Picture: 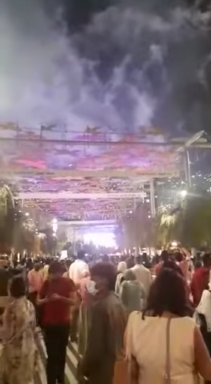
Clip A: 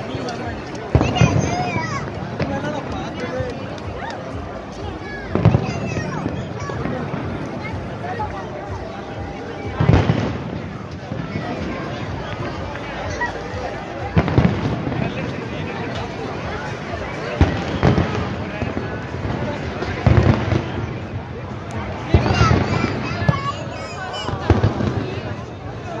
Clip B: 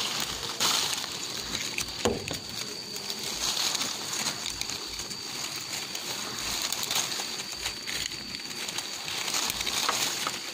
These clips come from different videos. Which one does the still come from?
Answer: A